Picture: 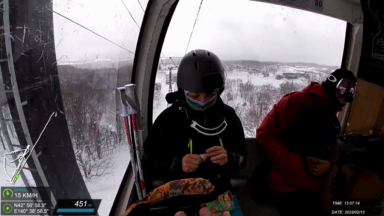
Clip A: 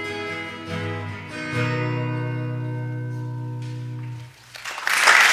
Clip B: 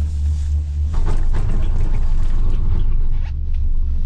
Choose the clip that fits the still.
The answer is B